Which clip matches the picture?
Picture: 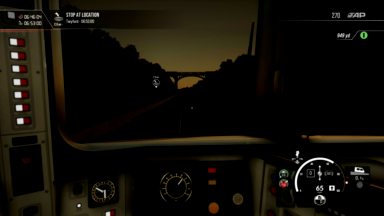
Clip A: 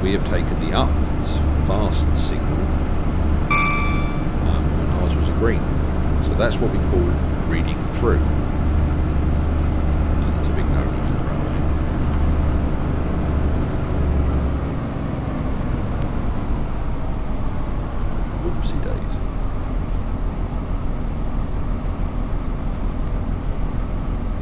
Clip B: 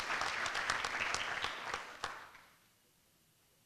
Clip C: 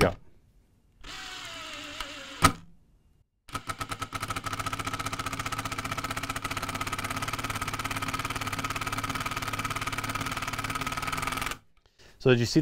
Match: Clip A